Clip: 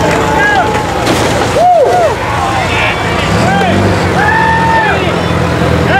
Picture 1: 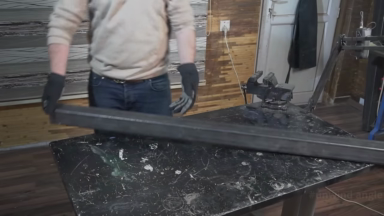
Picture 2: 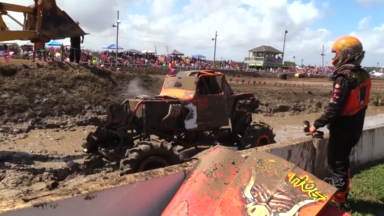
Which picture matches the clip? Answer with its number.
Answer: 2